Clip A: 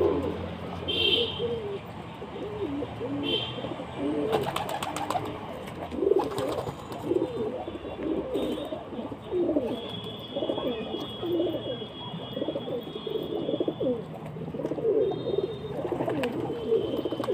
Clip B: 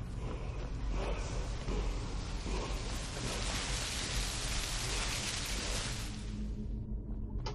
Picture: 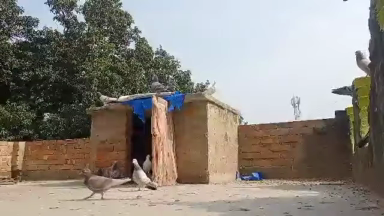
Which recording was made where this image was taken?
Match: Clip A